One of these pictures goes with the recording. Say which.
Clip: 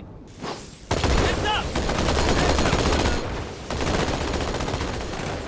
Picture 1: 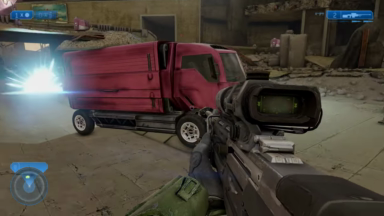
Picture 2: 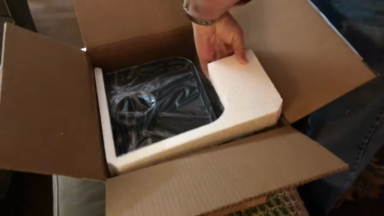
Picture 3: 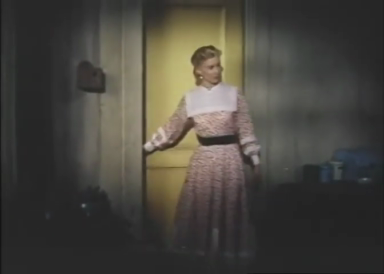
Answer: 1